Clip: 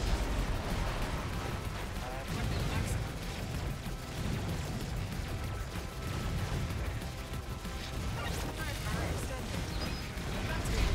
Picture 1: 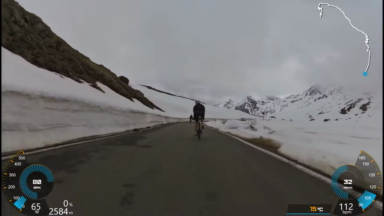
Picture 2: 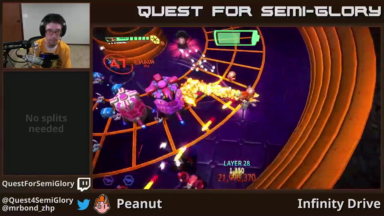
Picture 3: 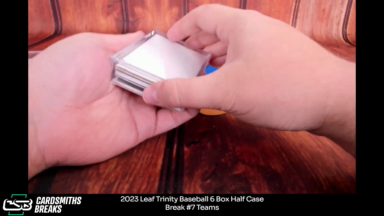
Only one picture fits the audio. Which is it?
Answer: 2